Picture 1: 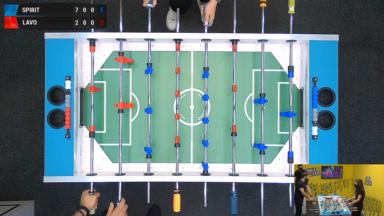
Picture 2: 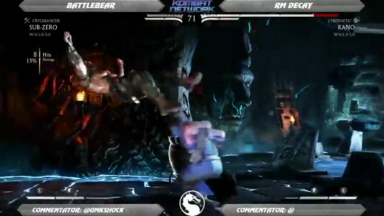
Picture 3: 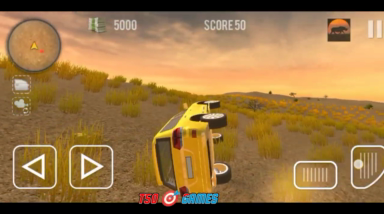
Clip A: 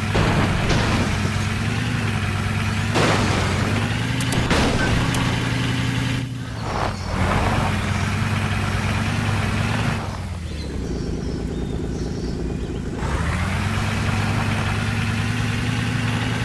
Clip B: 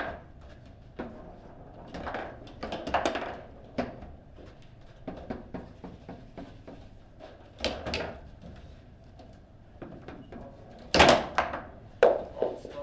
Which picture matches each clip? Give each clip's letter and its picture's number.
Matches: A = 3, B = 1